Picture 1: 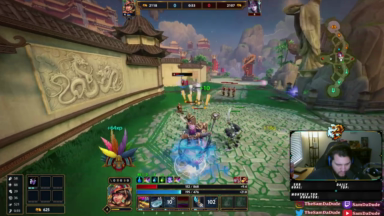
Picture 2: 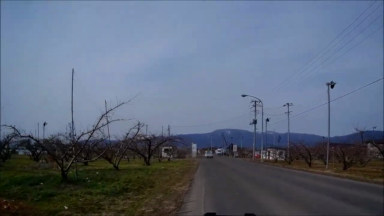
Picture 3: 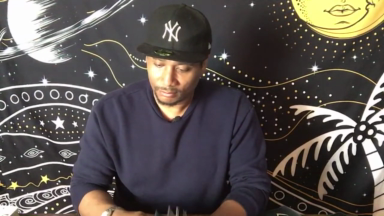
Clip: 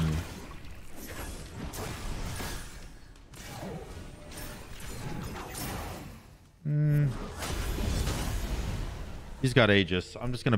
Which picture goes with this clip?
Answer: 1